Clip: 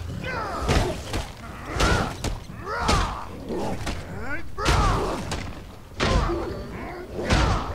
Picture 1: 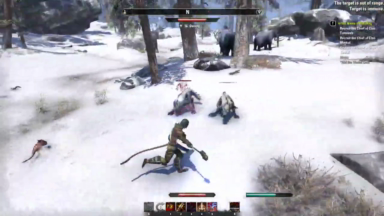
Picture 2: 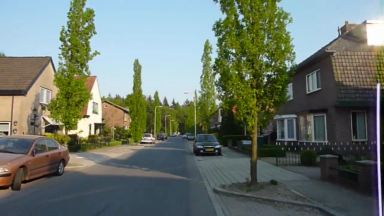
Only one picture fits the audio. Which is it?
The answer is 1